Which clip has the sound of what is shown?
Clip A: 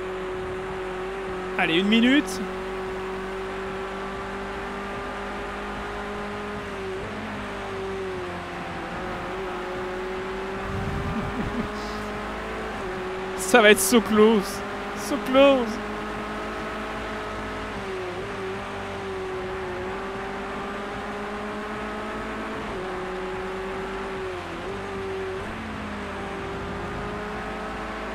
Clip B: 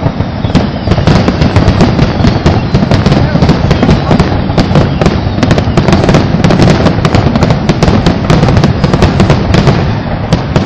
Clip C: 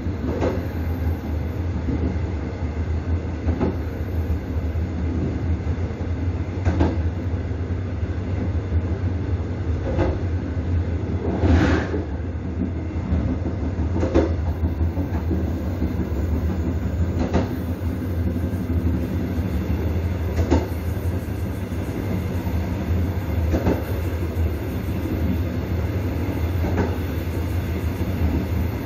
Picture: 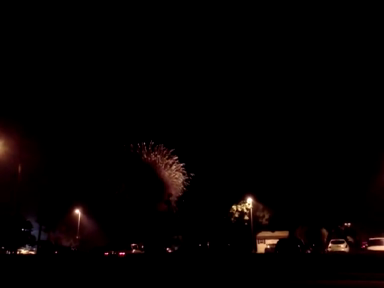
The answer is B